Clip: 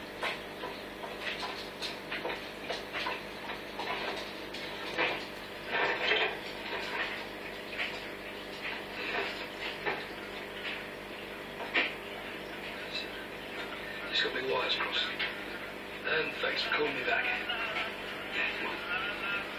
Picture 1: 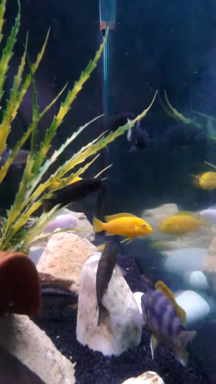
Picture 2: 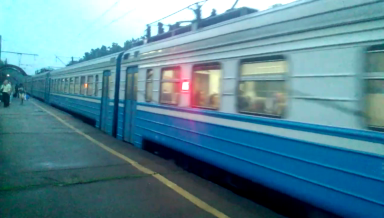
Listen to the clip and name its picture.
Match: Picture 1